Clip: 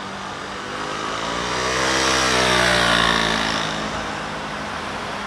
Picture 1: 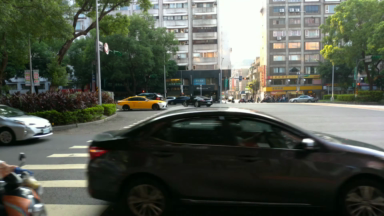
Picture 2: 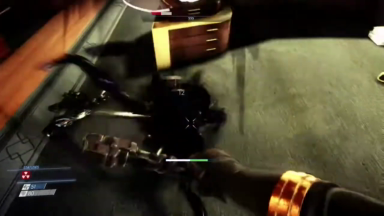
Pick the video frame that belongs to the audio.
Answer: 1